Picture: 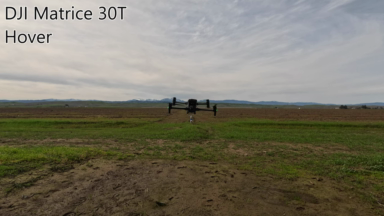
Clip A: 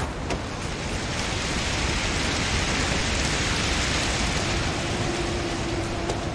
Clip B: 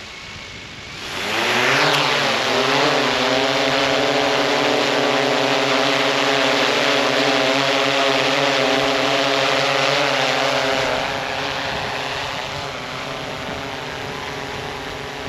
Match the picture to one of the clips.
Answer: B